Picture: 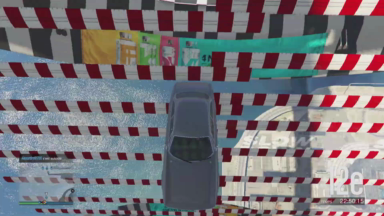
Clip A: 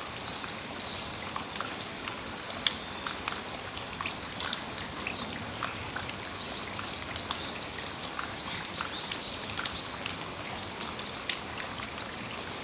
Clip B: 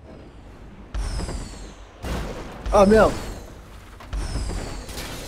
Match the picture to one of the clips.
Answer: B